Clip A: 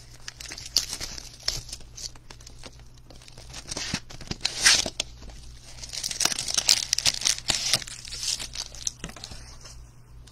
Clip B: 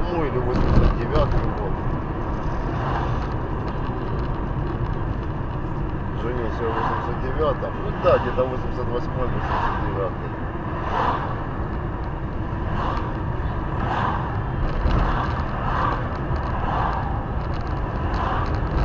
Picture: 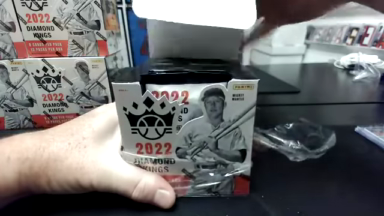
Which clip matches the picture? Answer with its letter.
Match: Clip A